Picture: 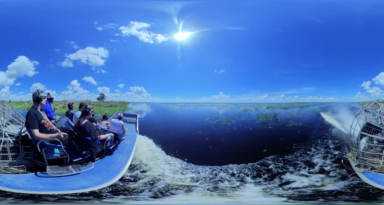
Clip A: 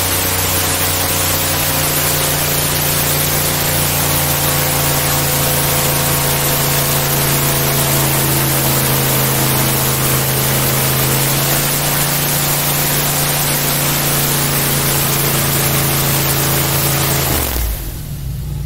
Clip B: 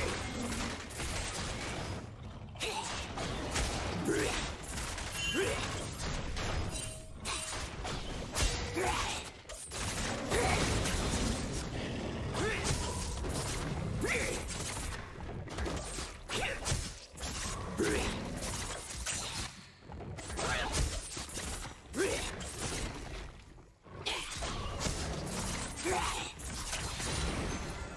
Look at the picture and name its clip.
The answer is A